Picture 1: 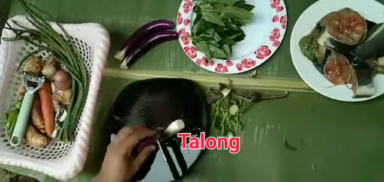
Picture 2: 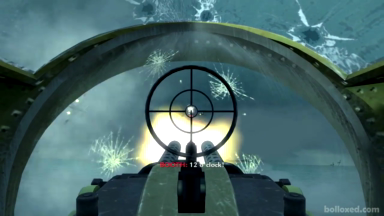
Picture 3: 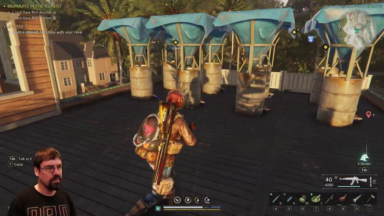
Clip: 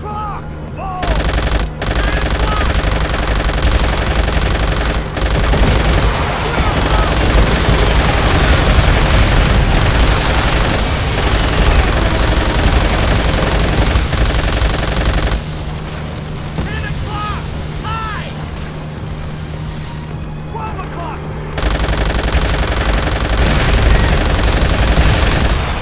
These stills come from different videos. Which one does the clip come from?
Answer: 2